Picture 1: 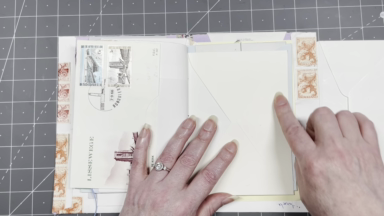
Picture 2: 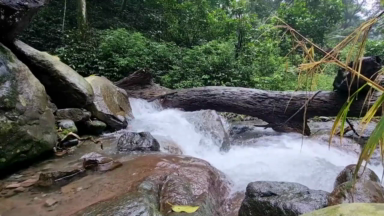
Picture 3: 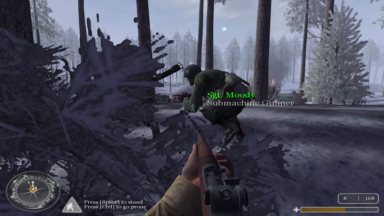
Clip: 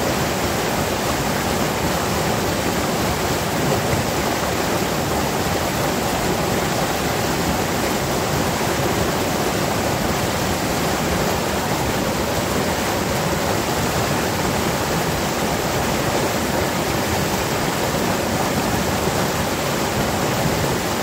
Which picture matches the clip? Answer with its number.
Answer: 2